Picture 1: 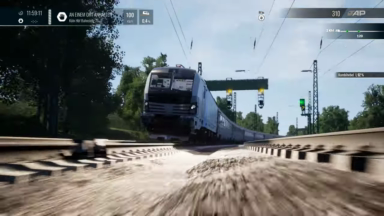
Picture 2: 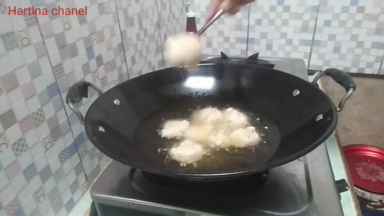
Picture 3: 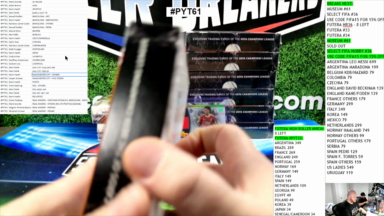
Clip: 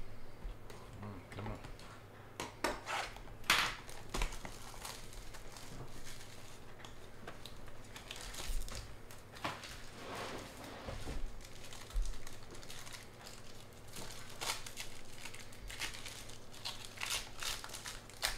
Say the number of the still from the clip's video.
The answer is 3